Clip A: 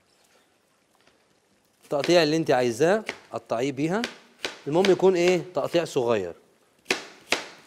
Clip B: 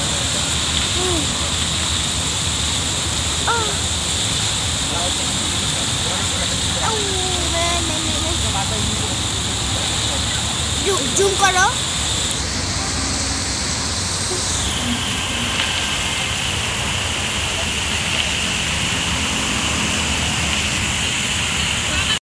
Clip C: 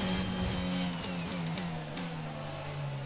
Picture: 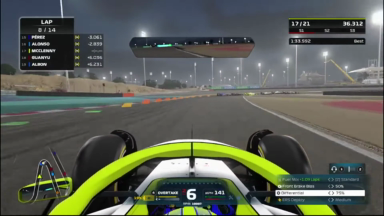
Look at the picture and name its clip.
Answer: C